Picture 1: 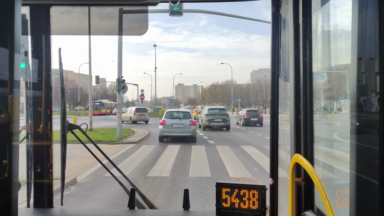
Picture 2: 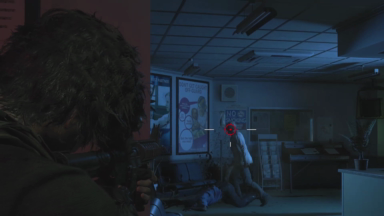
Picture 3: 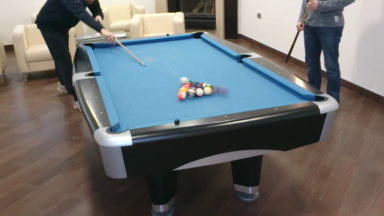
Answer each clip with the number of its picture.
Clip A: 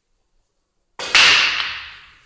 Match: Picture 3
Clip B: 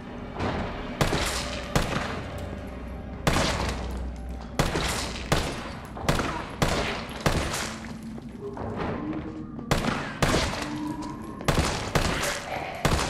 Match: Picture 2